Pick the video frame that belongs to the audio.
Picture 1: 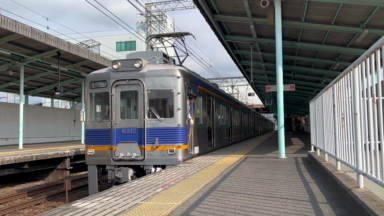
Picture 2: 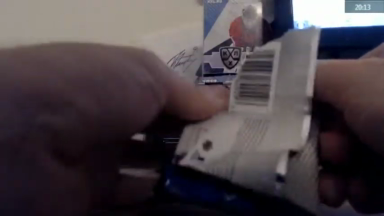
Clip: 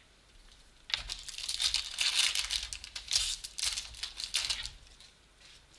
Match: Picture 2